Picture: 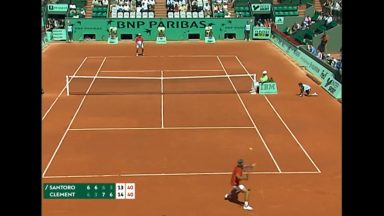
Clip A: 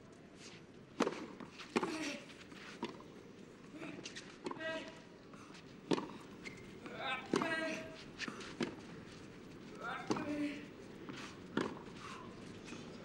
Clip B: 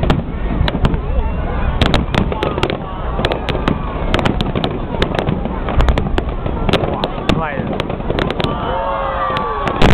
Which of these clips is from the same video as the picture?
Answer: A